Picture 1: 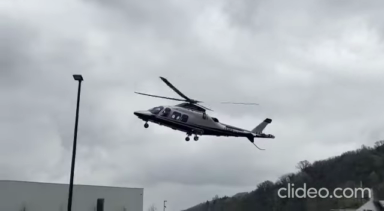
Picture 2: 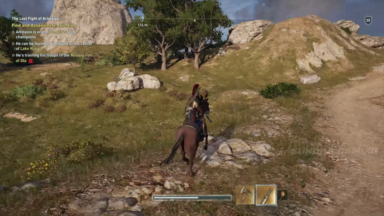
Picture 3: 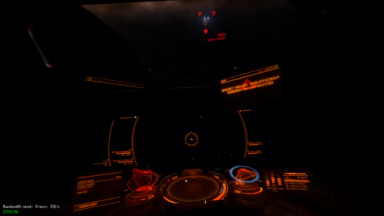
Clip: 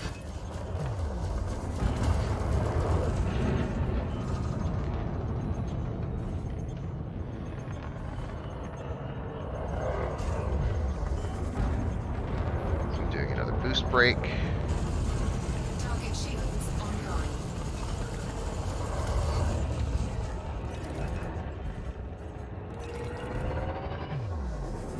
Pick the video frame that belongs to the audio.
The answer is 3